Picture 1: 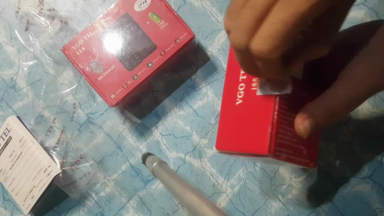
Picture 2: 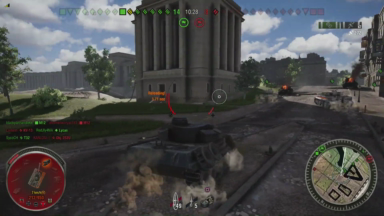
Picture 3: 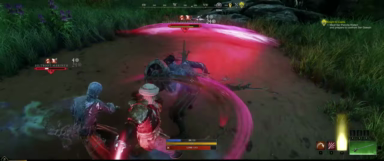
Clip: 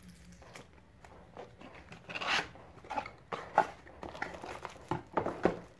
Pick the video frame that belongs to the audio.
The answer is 1